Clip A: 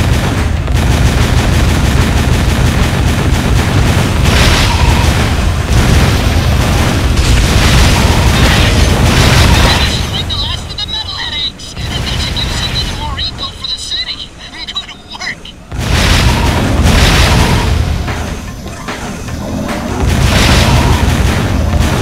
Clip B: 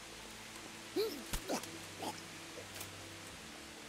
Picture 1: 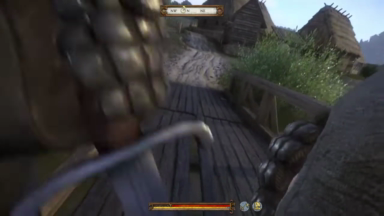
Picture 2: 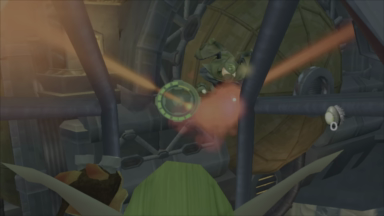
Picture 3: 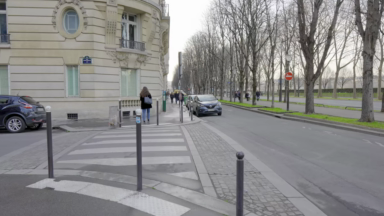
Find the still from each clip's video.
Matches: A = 2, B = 1